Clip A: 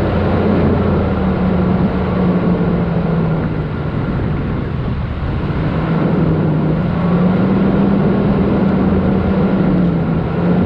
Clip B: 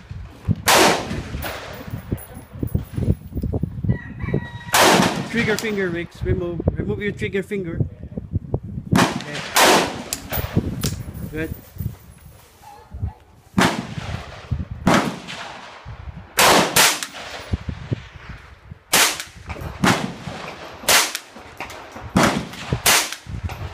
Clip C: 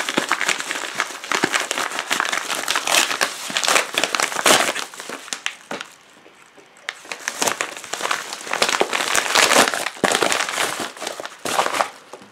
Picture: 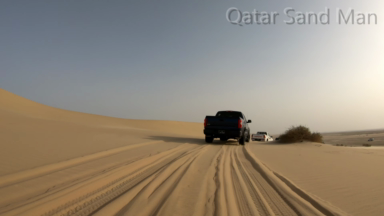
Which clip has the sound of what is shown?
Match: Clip A